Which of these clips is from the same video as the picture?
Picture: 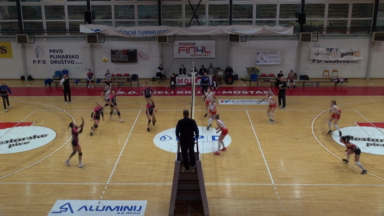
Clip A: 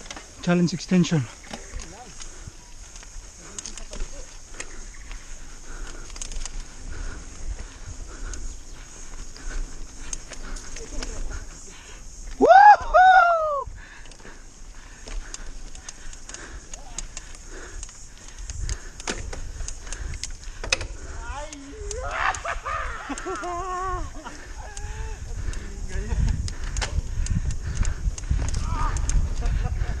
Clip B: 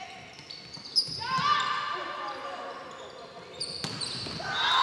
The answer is B